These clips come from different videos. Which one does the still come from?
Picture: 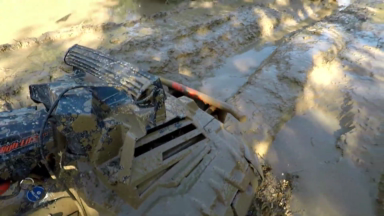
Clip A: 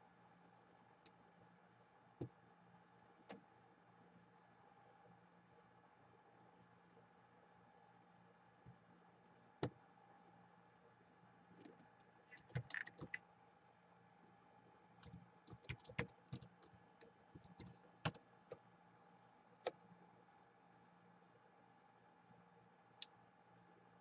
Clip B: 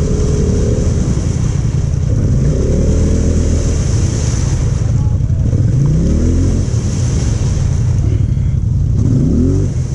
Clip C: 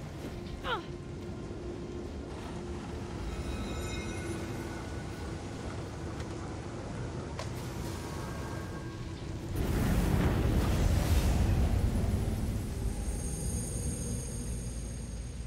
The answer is B